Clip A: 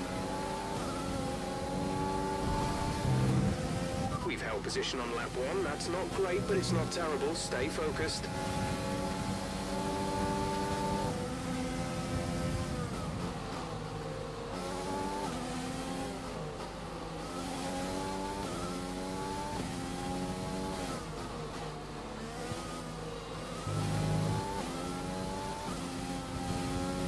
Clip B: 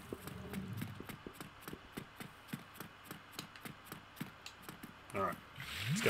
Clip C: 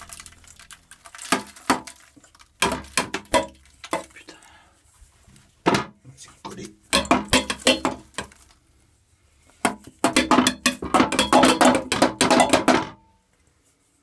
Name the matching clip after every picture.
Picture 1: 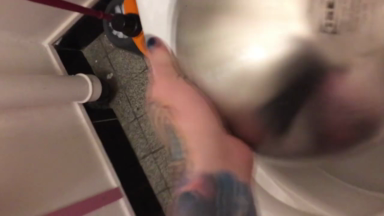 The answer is C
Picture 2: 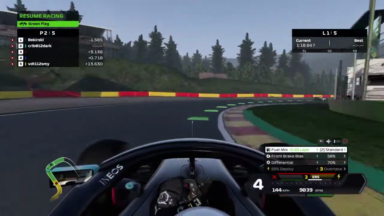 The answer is A